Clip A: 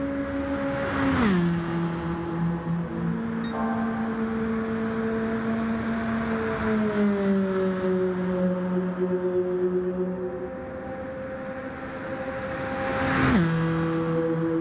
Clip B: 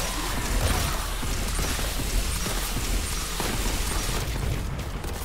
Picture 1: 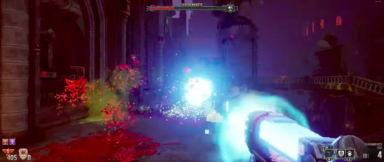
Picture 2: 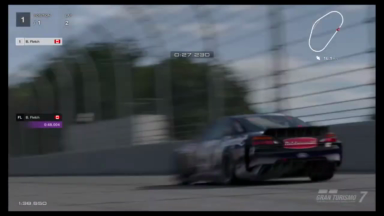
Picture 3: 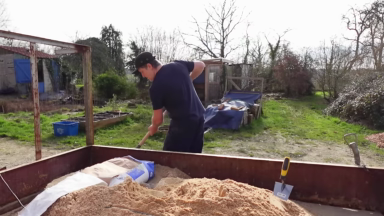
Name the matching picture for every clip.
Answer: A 2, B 1